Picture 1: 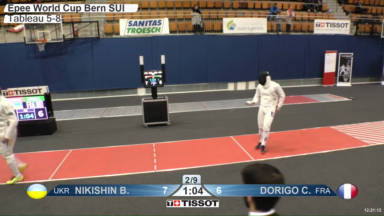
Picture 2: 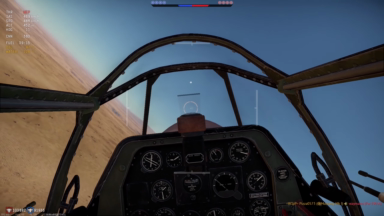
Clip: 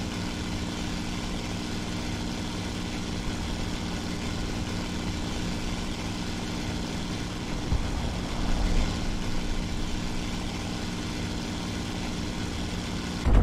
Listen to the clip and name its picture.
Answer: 2